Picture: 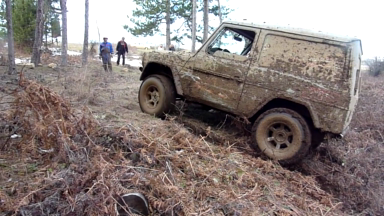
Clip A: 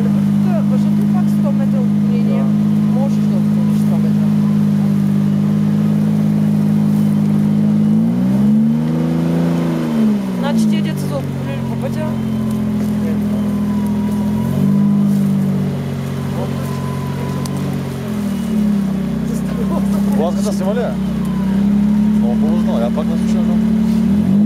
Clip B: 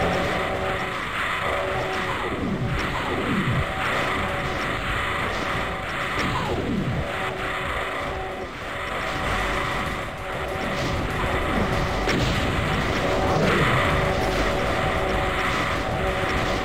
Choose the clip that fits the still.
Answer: A